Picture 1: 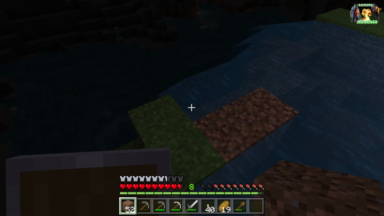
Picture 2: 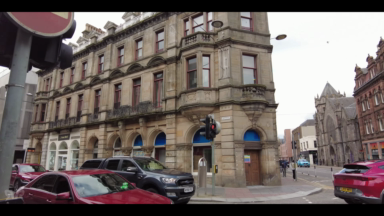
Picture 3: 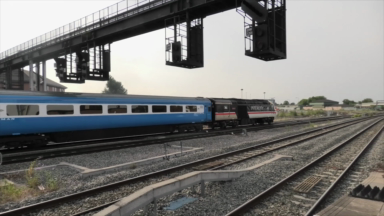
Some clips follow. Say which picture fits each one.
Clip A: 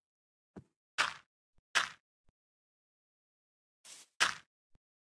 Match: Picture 1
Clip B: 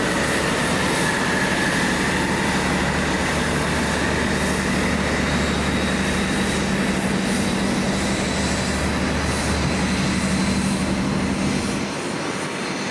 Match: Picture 3